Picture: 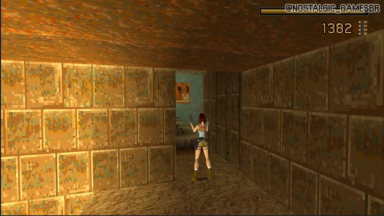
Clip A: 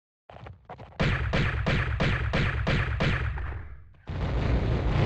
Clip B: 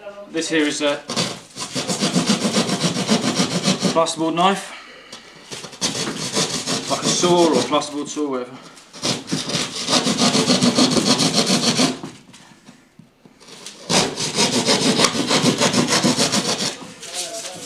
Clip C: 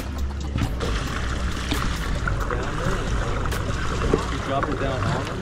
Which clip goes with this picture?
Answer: A